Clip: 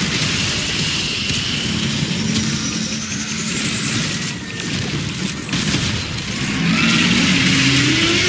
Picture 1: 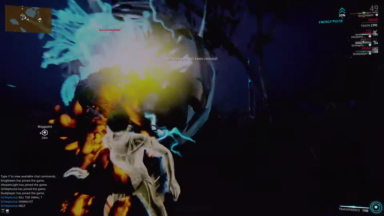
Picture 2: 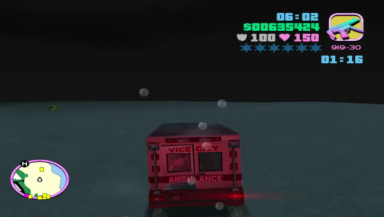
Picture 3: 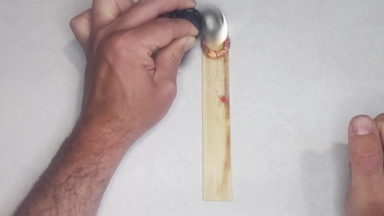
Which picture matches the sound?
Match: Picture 1